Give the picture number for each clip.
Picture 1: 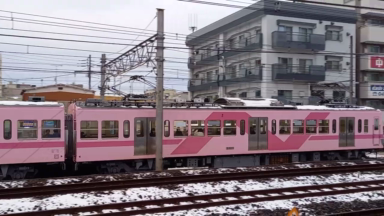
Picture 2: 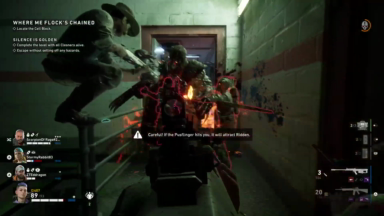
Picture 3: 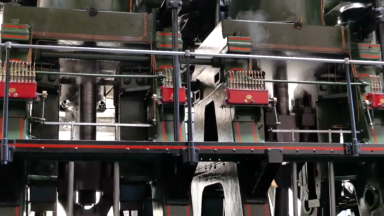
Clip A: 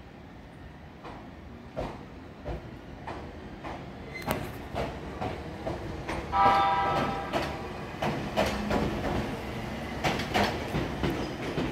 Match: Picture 1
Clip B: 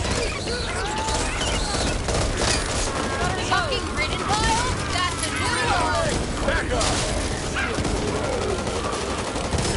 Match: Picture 2